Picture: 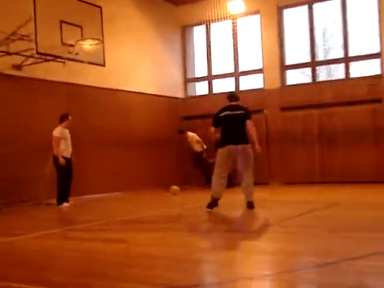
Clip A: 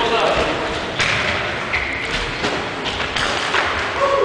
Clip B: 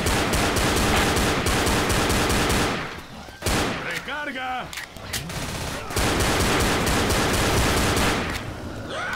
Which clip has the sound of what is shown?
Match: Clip A